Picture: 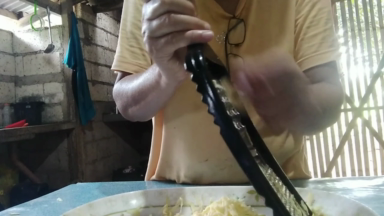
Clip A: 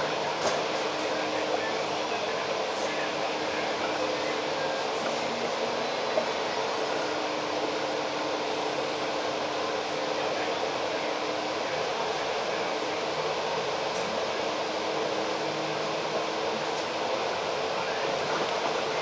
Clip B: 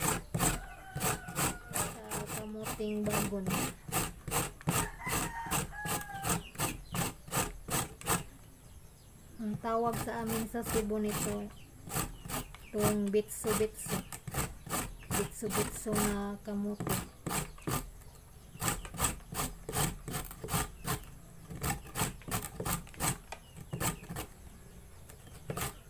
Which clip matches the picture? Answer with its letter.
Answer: B